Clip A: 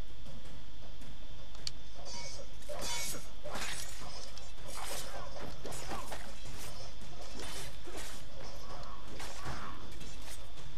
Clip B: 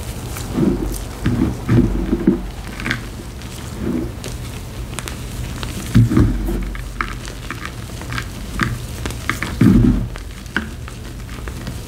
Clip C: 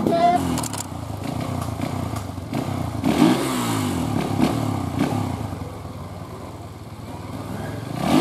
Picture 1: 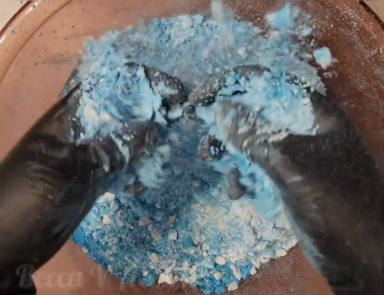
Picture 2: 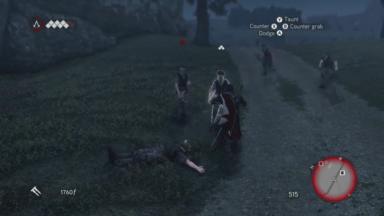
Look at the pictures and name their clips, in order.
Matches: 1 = B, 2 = A